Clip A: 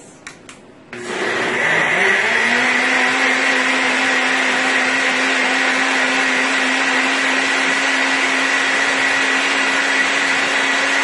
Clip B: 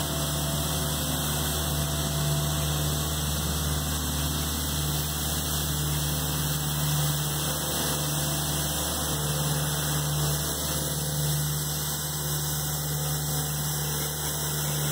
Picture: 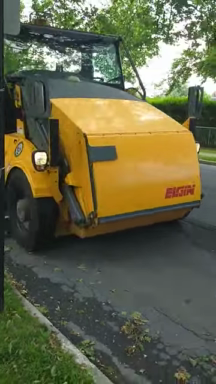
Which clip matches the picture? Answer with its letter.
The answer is B